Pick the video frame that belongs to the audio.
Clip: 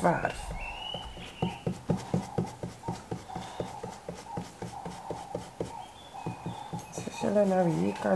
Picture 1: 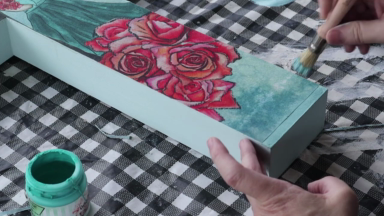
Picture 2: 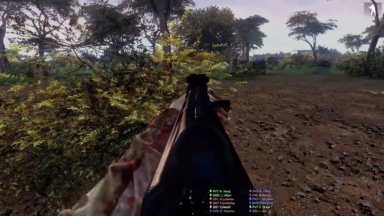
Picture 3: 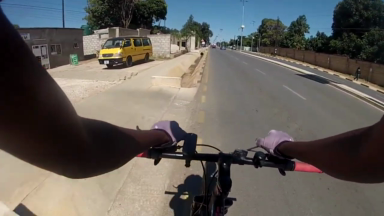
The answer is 1